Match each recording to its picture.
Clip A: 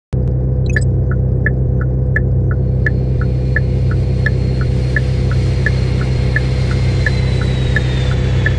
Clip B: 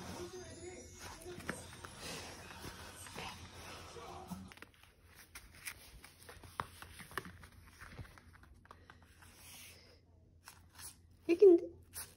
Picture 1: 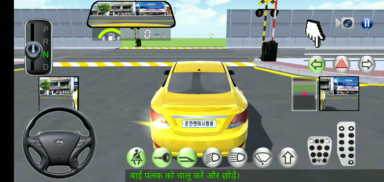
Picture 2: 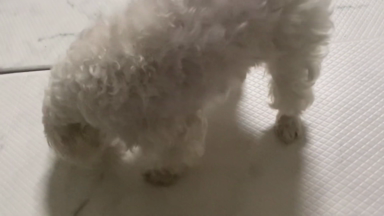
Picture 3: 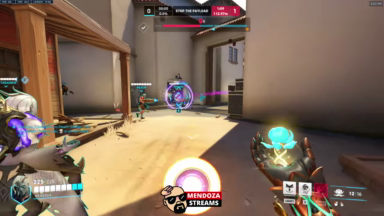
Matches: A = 1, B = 2